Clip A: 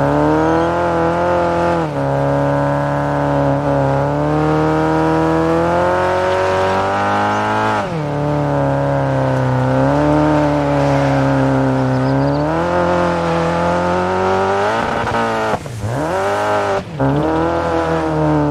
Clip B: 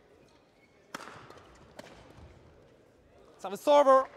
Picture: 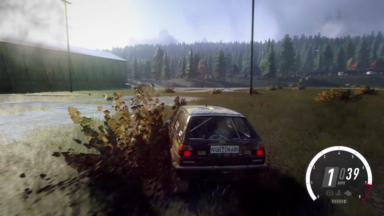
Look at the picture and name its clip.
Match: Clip A